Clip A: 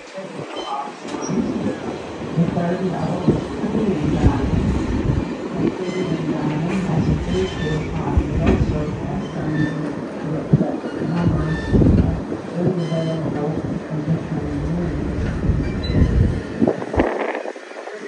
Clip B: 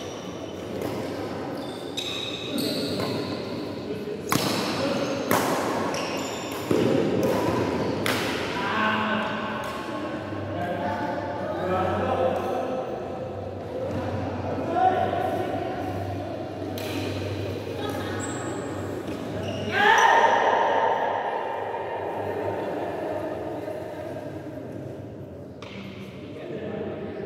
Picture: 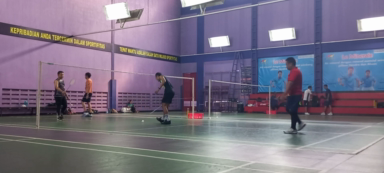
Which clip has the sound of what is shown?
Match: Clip B